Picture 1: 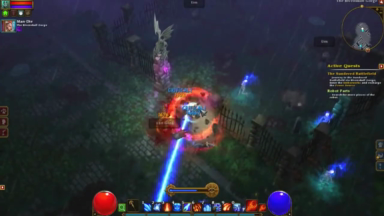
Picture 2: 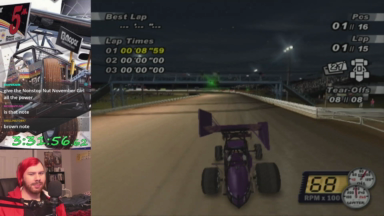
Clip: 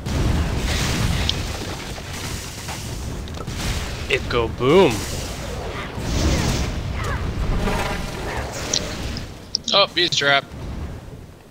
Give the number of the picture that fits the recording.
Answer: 1